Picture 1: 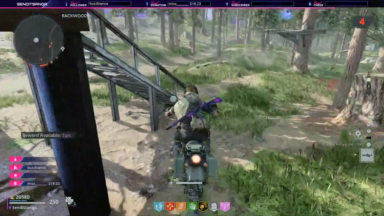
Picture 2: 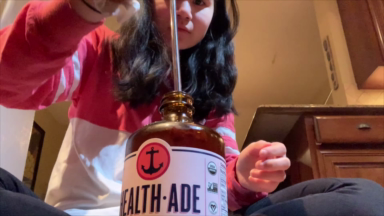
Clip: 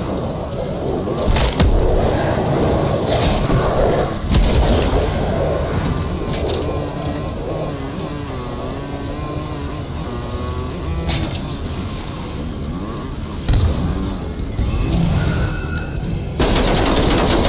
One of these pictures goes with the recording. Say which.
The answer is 1